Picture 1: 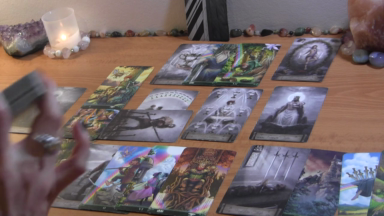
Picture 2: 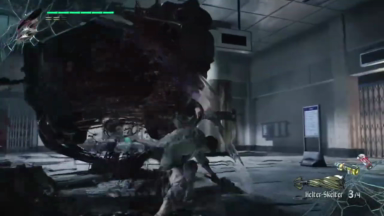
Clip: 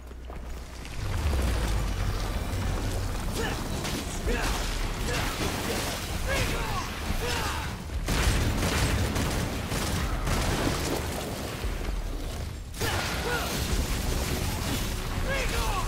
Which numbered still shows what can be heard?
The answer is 2